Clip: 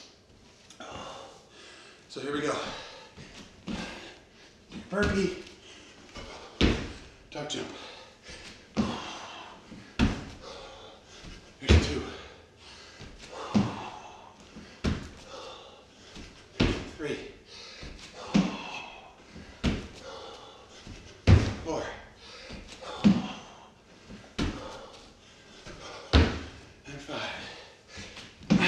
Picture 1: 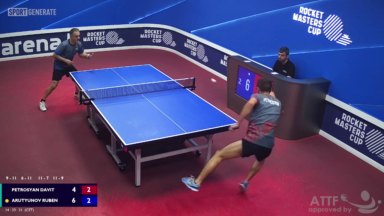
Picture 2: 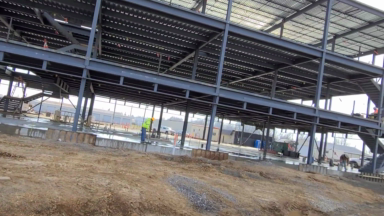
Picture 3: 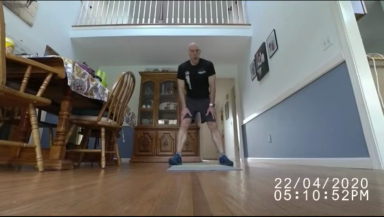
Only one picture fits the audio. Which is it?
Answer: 3